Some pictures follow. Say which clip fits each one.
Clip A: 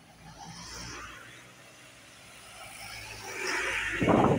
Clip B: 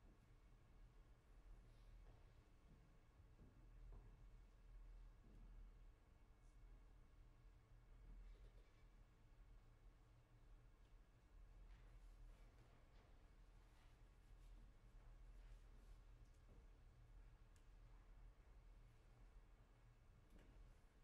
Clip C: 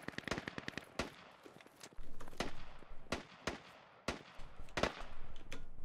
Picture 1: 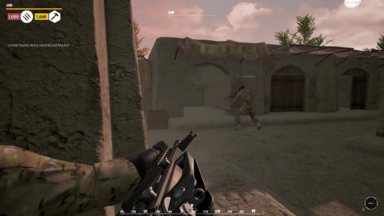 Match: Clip C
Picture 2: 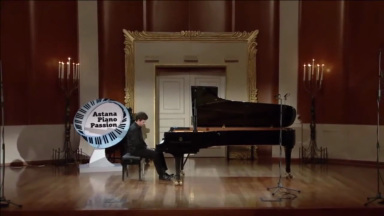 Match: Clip B